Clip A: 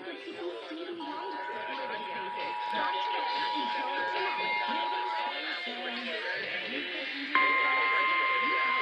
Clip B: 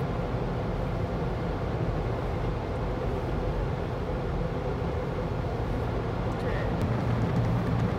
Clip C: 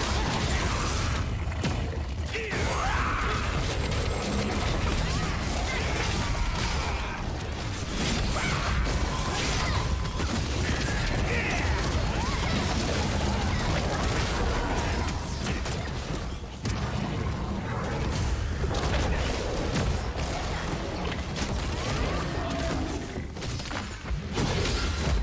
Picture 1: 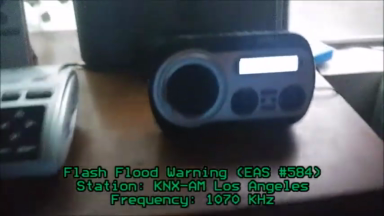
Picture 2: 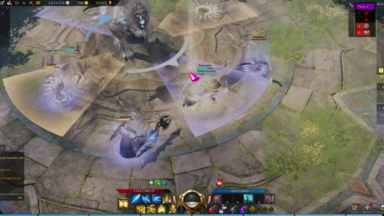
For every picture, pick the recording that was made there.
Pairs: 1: A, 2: C